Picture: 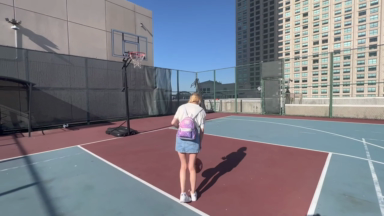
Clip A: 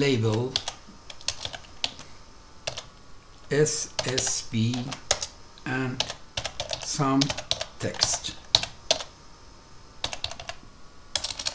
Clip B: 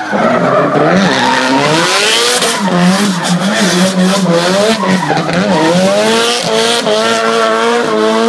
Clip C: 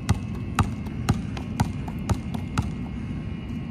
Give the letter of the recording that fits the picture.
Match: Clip C